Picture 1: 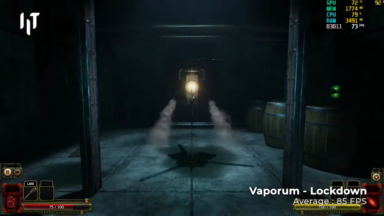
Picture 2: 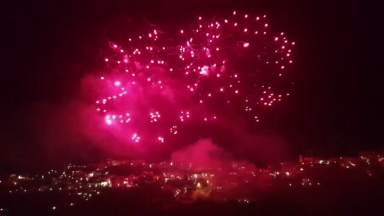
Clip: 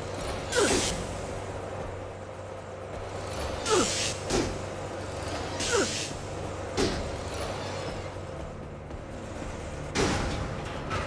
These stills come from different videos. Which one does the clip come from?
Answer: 1